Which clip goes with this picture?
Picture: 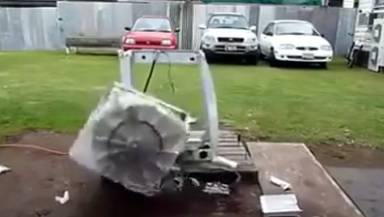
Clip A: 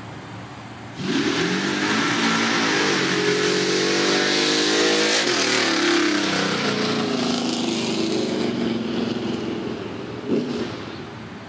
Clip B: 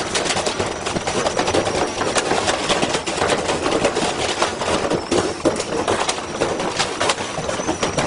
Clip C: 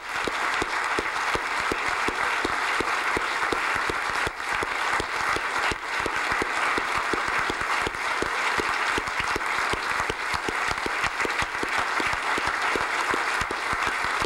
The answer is B